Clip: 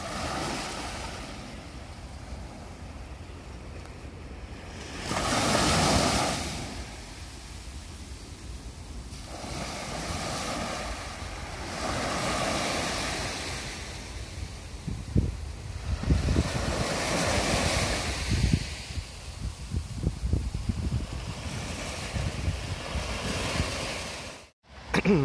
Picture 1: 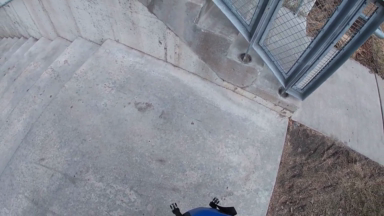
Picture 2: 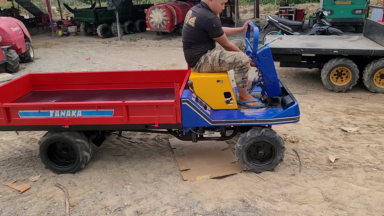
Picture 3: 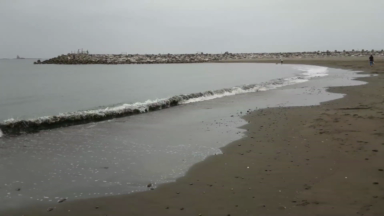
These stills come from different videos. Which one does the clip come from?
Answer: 3